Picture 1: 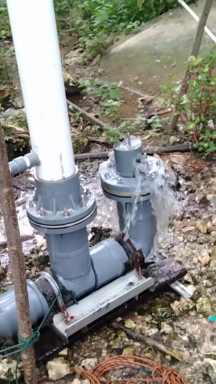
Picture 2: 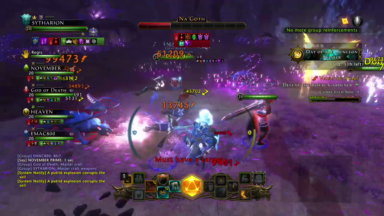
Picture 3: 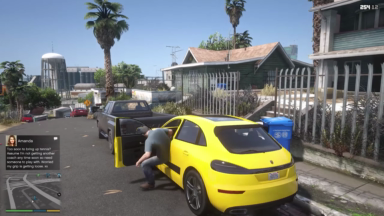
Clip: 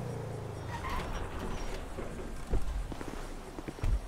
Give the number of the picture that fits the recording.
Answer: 3